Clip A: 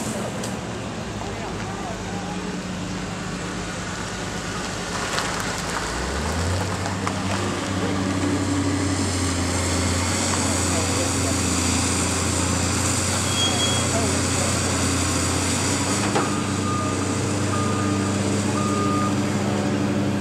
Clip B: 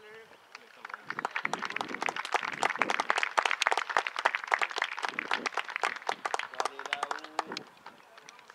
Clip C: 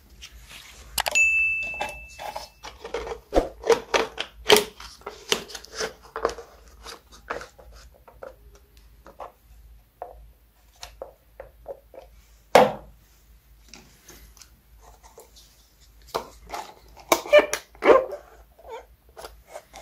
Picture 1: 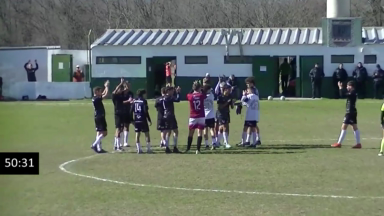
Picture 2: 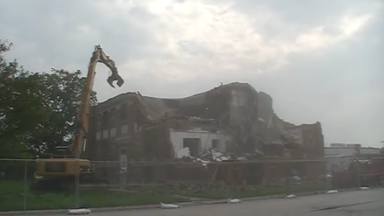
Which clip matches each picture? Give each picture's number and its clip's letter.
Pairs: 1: B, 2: A